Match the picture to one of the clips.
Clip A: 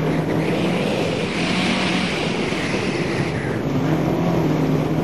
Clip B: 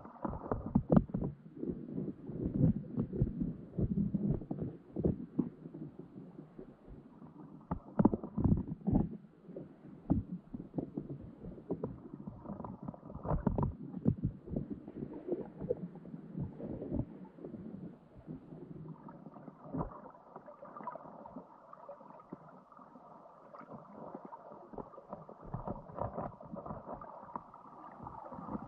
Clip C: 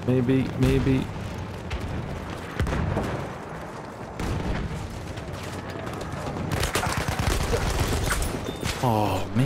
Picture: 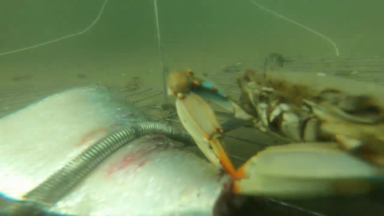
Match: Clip B